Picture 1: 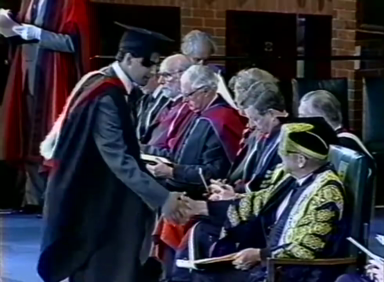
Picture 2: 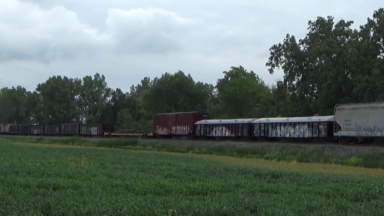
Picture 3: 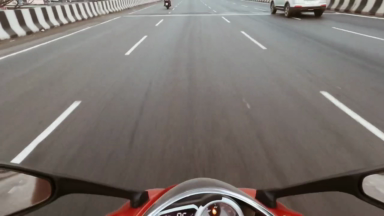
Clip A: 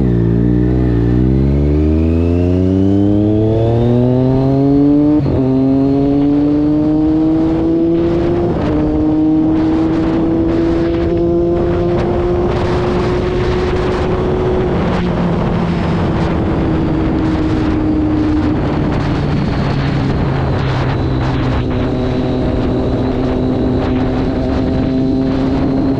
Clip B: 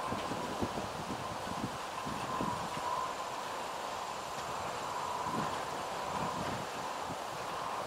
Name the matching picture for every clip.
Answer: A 3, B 2